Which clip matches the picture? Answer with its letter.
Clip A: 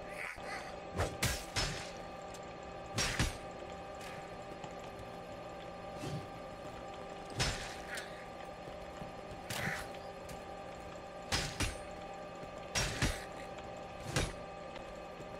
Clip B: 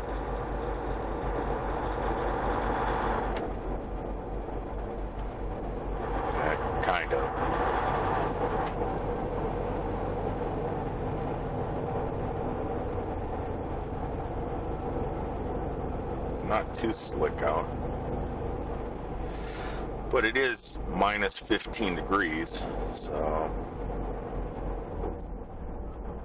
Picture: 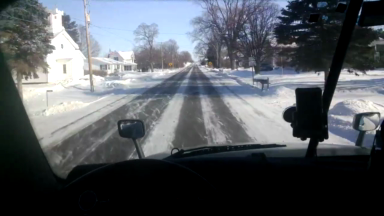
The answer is B